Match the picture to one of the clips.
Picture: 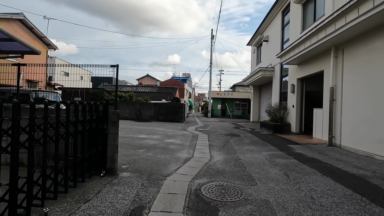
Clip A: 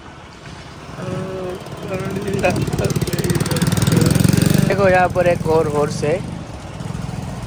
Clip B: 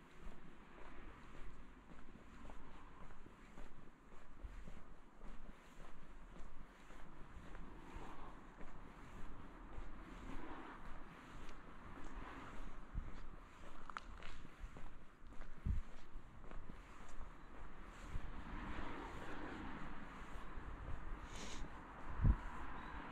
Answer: B